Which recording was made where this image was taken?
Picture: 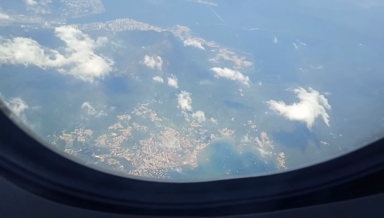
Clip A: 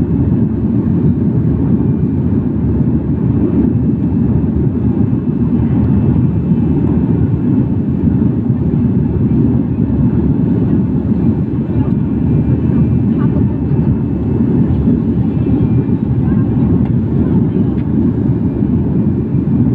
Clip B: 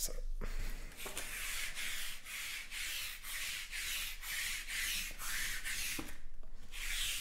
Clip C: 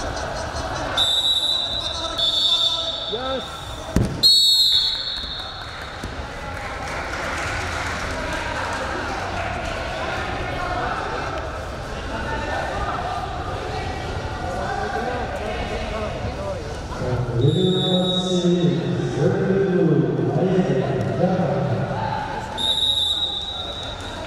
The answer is A